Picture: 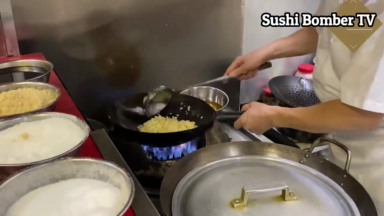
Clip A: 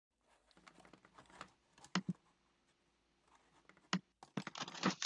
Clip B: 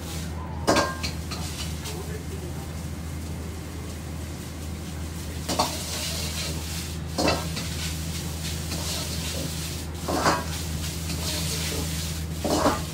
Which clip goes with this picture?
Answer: B